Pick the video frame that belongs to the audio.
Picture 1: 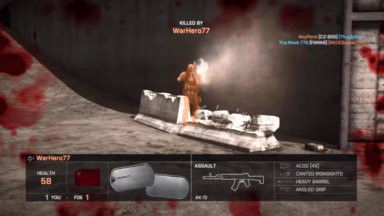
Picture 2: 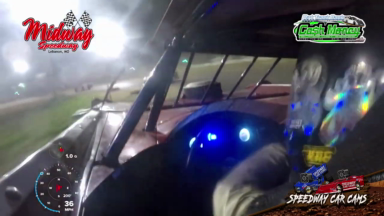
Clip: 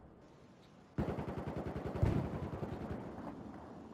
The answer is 1